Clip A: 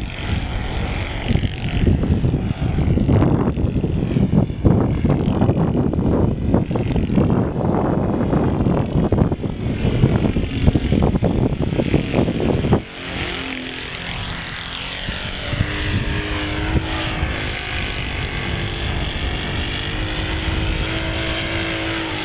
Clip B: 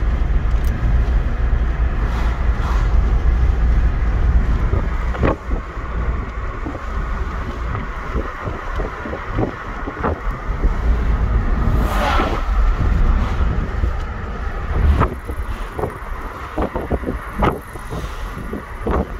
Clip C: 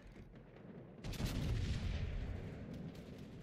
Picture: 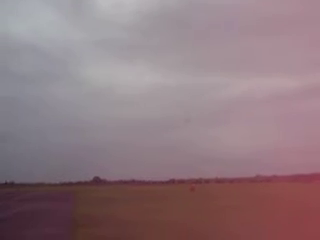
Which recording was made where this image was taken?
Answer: A